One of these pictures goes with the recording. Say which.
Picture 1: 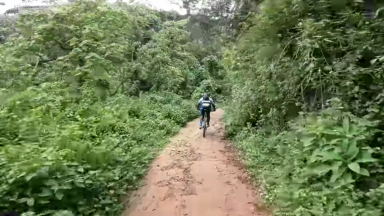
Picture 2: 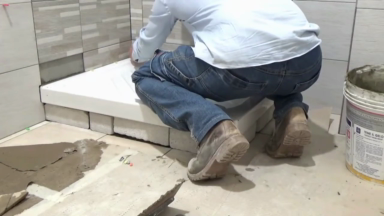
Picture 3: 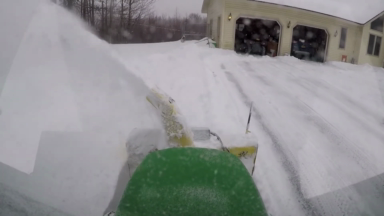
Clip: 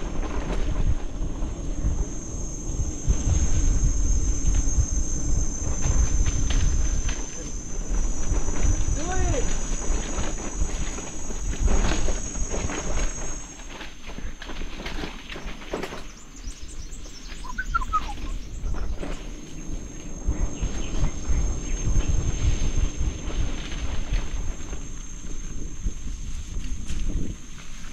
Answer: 1